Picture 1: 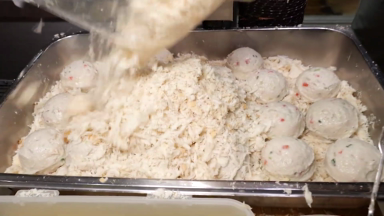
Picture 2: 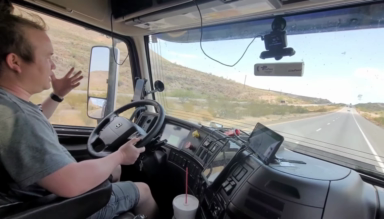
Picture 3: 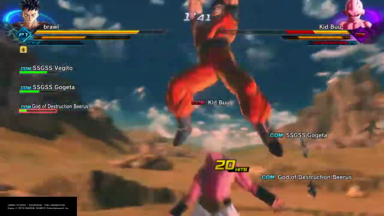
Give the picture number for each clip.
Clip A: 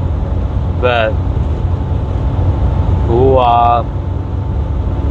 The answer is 2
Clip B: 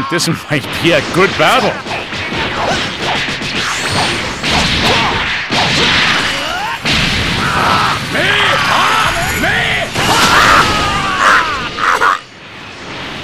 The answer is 3